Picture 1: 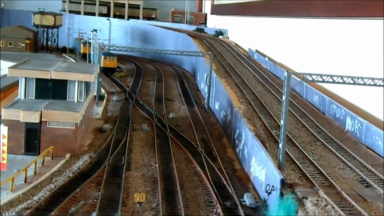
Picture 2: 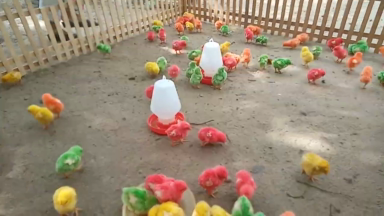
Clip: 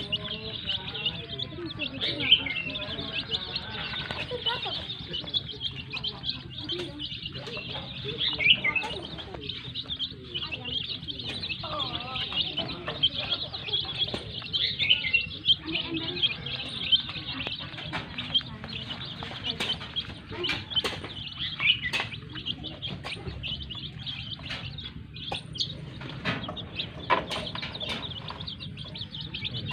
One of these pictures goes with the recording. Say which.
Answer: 2